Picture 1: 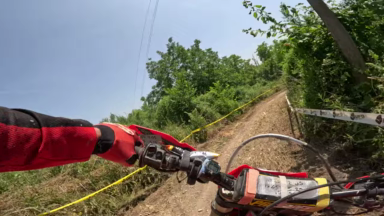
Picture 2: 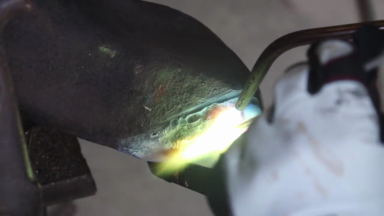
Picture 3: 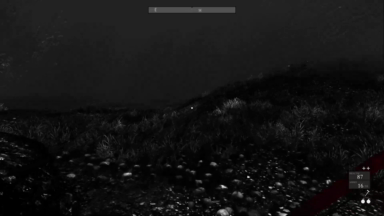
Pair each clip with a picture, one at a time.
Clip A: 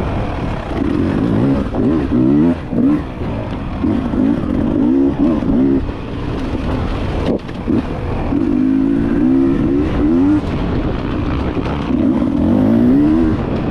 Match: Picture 1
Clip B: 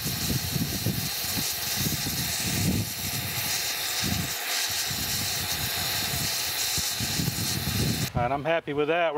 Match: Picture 2